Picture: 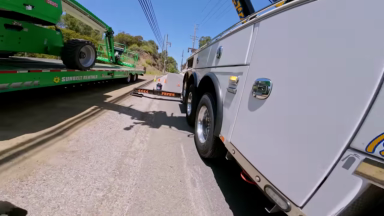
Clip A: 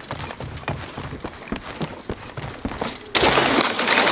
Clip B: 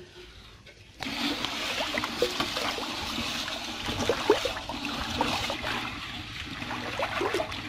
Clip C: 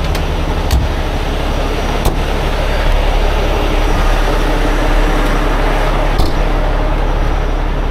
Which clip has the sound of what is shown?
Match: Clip C